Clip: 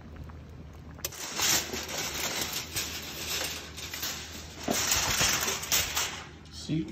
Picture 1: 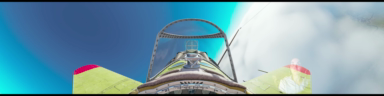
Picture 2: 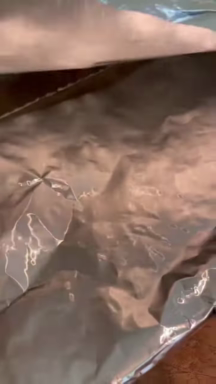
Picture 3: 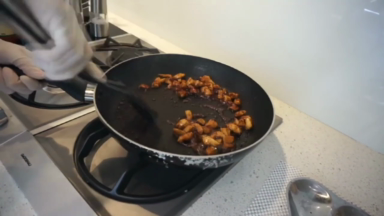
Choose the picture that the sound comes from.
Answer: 2